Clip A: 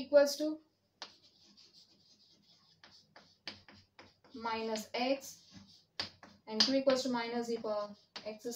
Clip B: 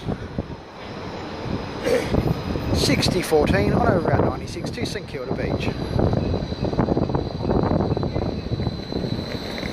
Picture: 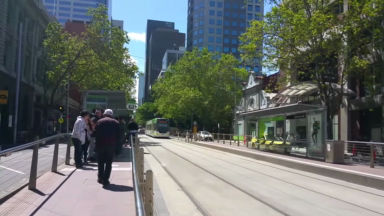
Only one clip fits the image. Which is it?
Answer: B